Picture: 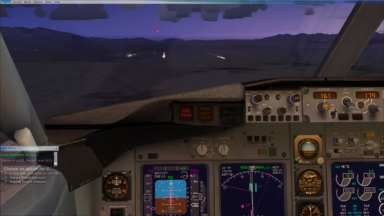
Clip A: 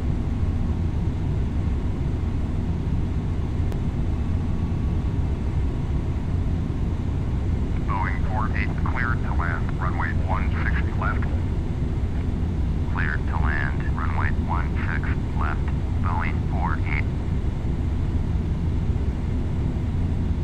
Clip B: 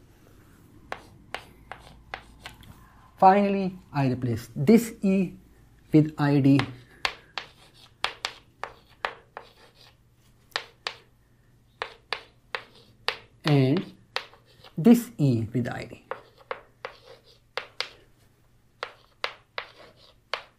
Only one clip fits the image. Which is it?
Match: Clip A